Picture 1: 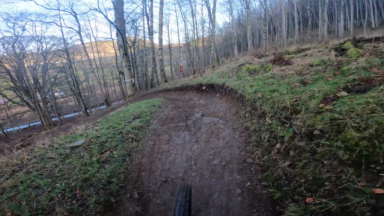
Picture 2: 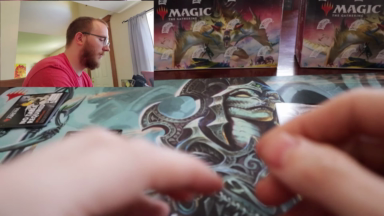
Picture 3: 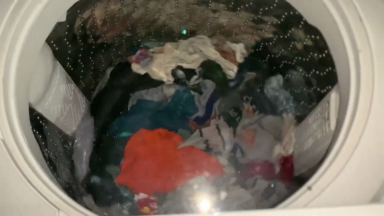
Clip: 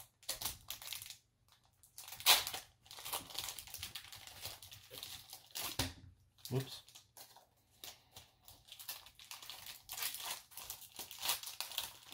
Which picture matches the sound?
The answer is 2